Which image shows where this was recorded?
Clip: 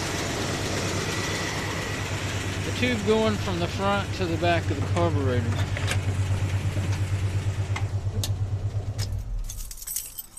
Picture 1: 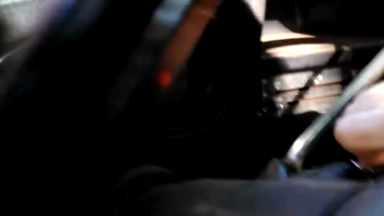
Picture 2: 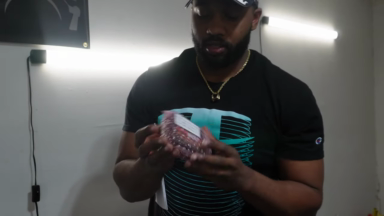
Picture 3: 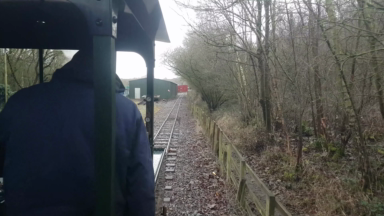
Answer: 1